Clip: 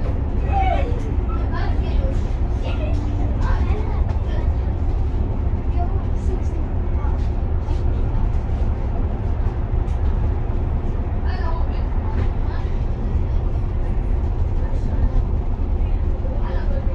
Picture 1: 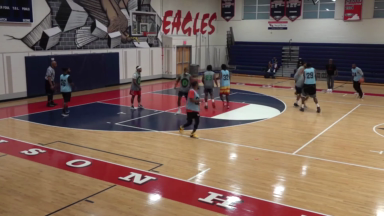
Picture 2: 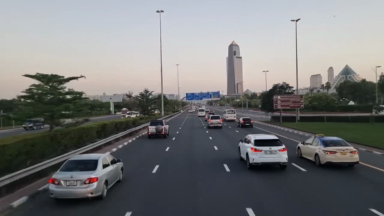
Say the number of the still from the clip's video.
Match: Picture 2